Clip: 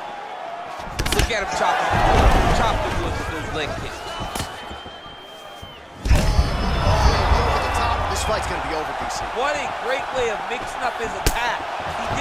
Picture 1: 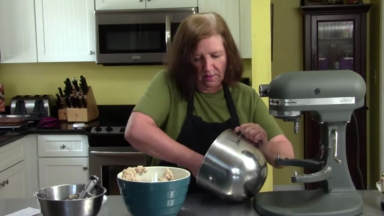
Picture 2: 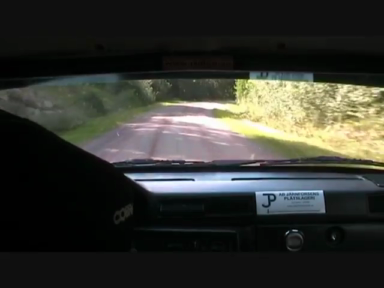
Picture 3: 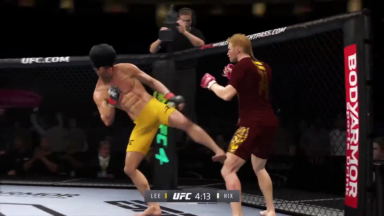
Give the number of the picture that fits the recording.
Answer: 3